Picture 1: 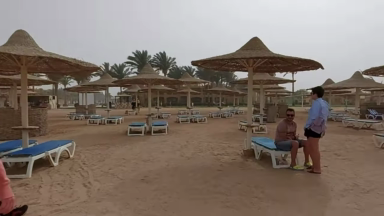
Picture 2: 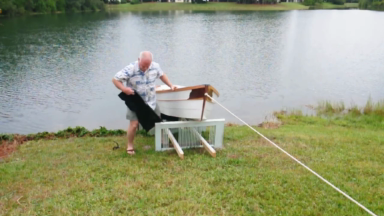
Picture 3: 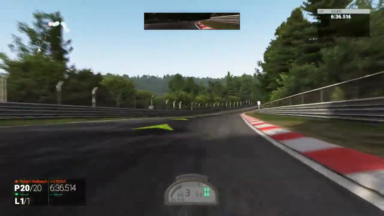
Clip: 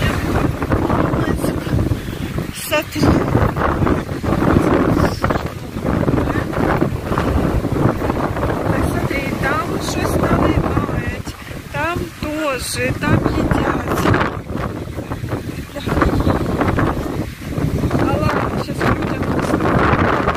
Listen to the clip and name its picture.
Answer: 1